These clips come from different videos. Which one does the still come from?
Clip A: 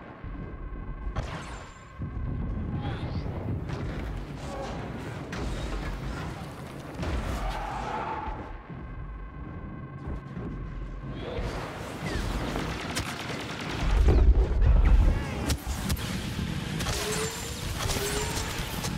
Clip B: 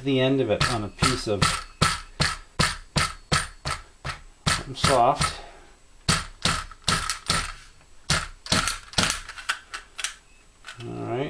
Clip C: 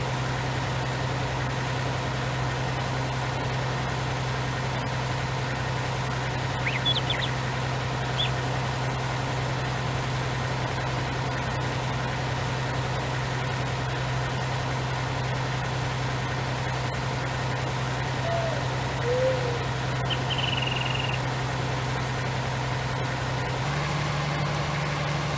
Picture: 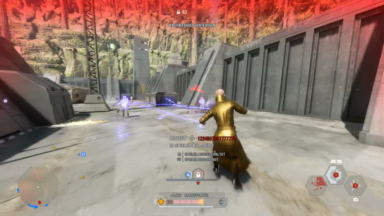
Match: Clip A